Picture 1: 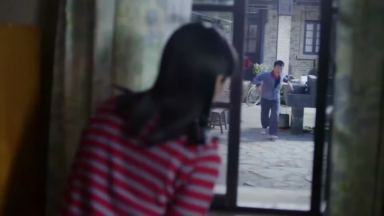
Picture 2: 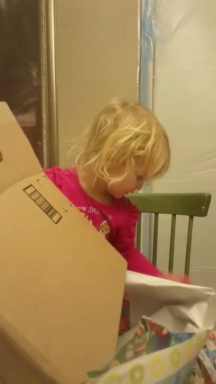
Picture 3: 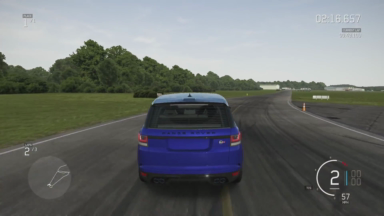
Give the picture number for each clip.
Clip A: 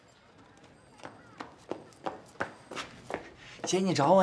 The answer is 1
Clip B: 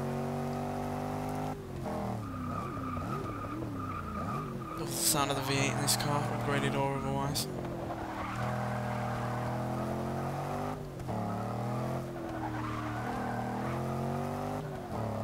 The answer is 3